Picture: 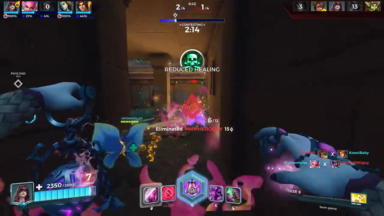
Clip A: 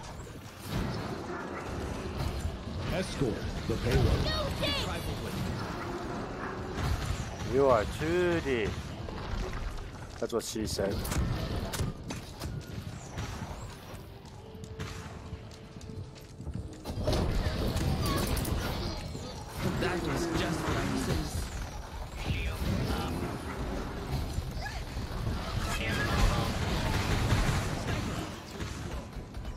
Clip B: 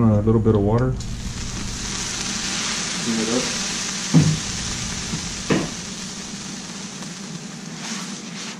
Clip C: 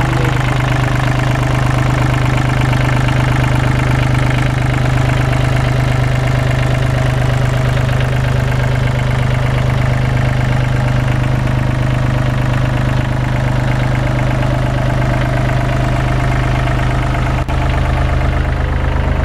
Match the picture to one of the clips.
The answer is A